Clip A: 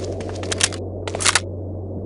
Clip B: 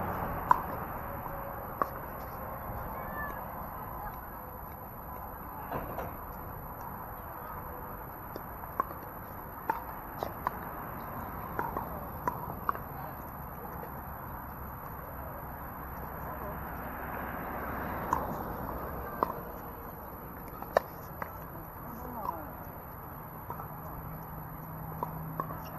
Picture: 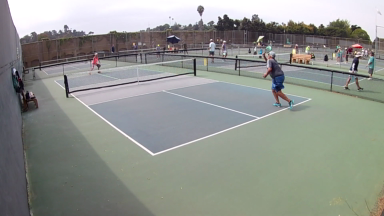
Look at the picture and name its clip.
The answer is B